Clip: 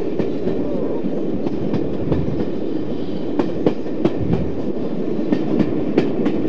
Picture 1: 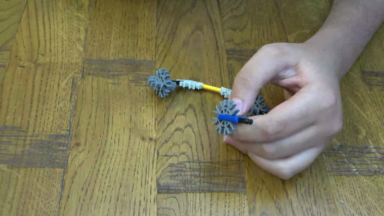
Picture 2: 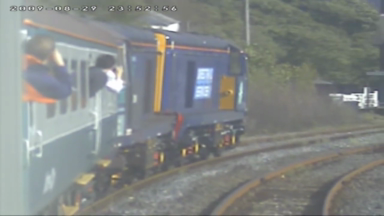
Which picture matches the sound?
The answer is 2